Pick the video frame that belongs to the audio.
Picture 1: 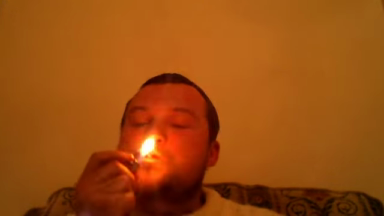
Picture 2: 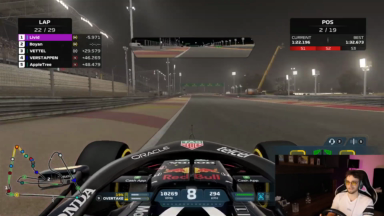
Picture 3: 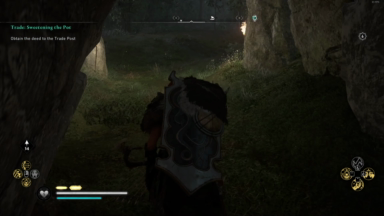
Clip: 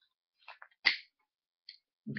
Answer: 1